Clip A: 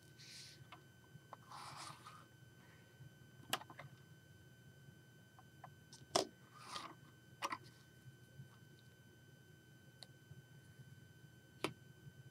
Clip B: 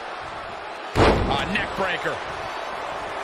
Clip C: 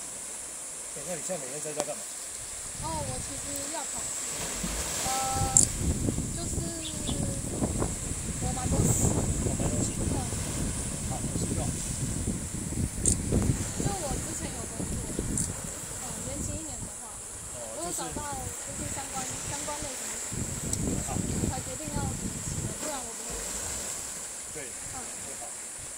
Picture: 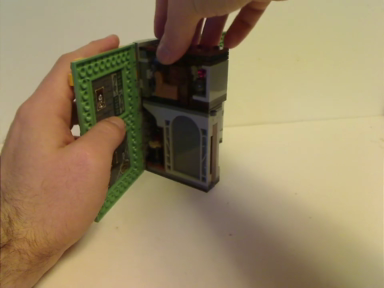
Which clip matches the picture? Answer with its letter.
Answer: A